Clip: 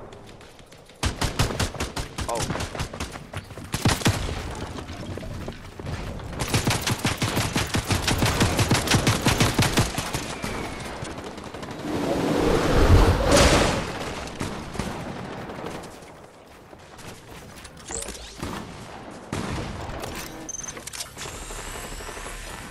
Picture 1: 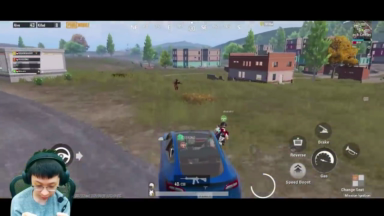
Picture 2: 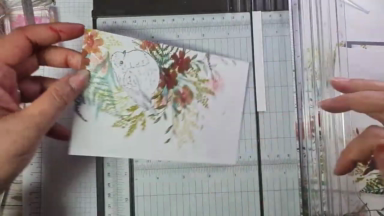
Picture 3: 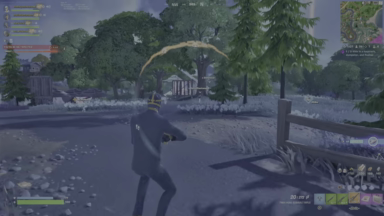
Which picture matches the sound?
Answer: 3